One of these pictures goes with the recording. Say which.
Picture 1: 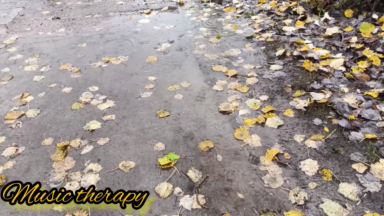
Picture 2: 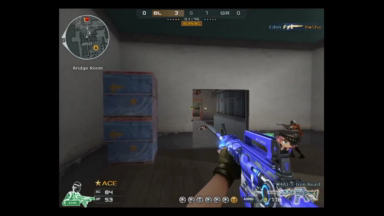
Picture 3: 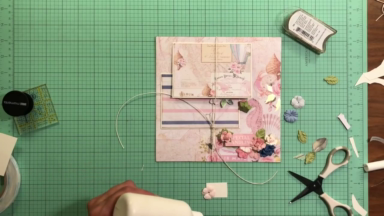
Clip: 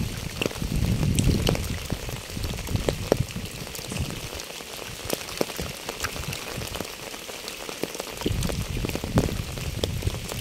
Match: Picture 1